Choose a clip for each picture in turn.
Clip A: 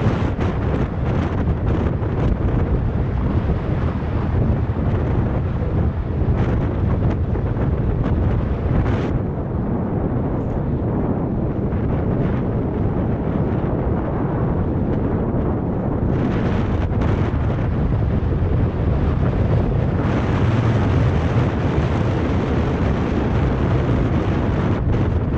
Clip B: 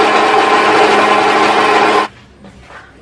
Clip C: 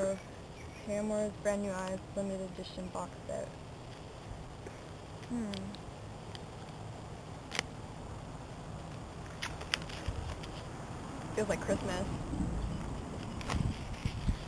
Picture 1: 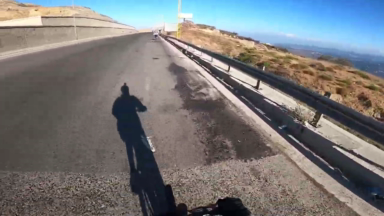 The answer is A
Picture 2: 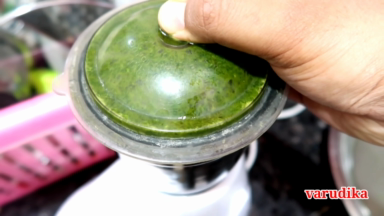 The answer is B